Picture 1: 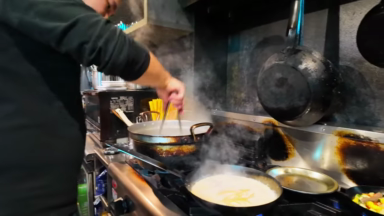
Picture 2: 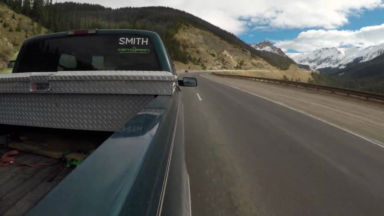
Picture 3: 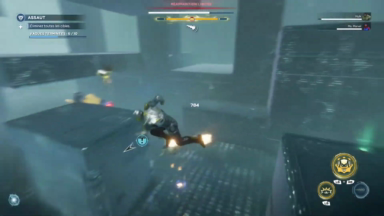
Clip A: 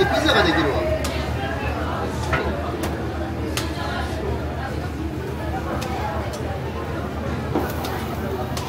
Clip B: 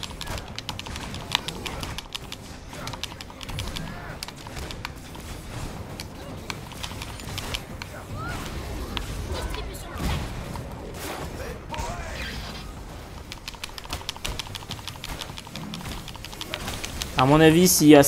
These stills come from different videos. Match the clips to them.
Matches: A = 1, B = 3